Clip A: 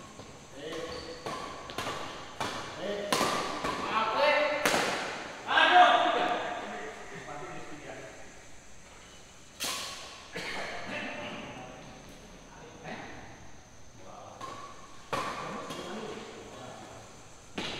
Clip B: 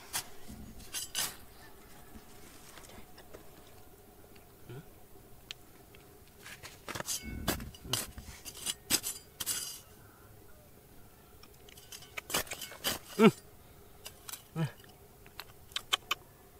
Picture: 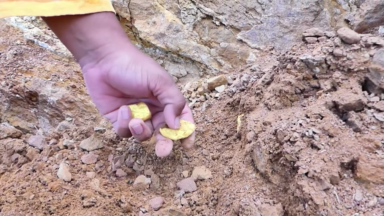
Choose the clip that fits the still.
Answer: B